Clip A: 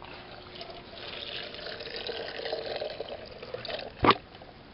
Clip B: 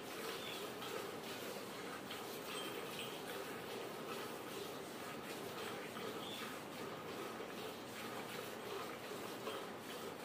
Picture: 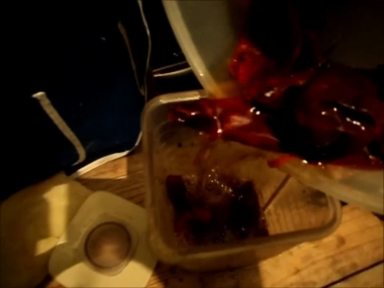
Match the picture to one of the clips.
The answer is A